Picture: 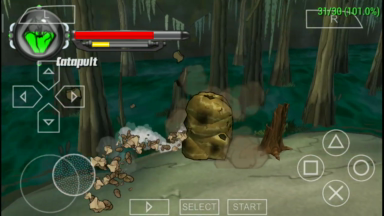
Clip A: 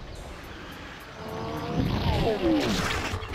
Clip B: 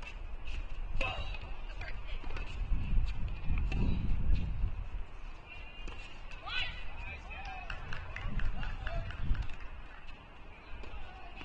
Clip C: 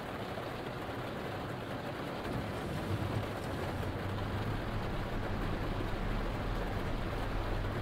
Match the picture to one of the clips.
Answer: A